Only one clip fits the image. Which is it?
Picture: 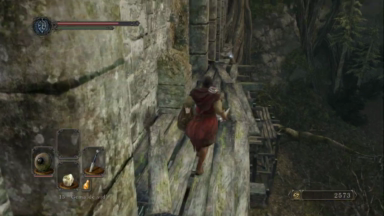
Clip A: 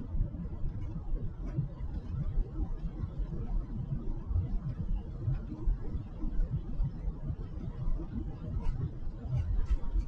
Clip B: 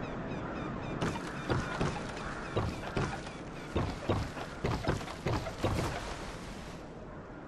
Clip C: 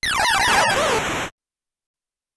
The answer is B